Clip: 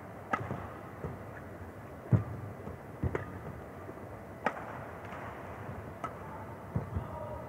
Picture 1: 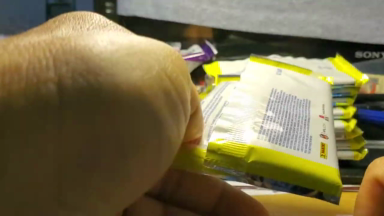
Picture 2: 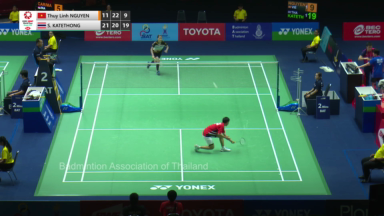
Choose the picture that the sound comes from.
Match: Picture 2